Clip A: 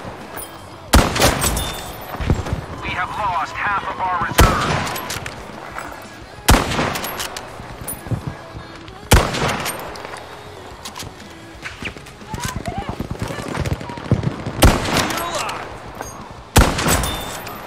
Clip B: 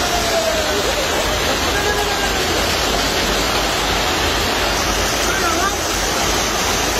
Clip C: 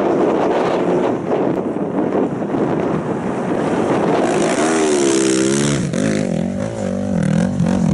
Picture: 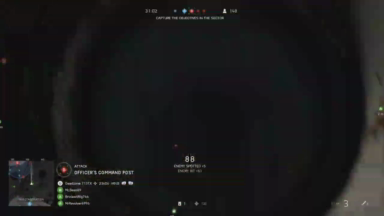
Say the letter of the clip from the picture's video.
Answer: A